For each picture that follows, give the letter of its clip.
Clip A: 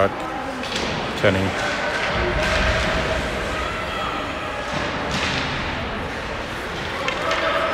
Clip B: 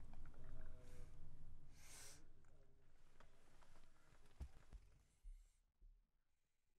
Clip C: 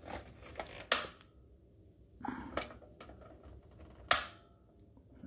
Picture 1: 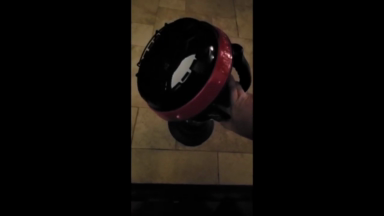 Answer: C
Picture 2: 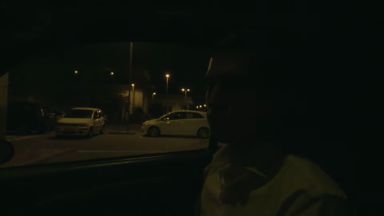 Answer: B